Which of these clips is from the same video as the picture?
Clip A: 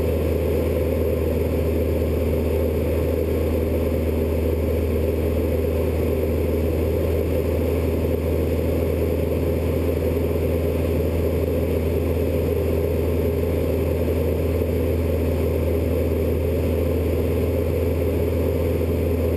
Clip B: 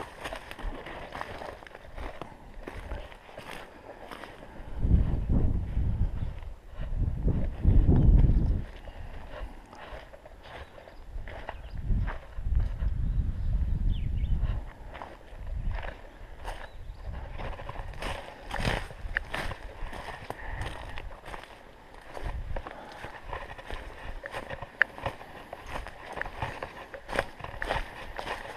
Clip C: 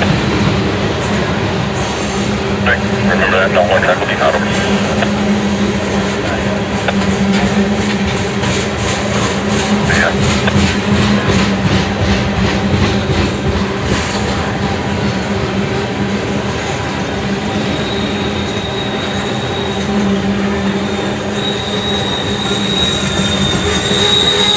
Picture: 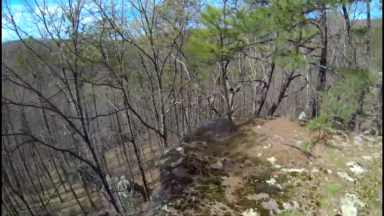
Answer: B